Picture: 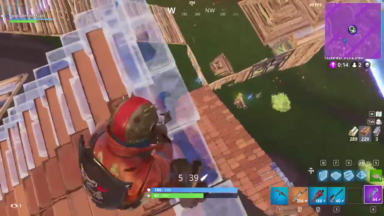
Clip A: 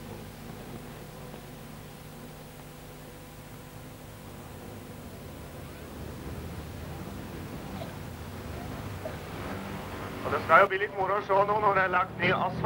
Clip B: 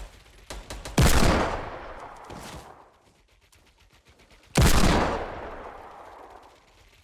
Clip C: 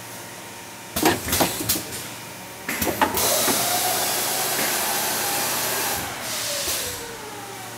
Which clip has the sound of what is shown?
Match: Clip B